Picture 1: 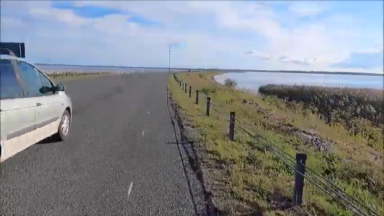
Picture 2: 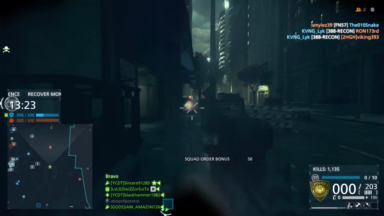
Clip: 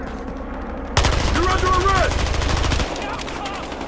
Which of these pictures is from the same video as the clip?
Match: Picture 2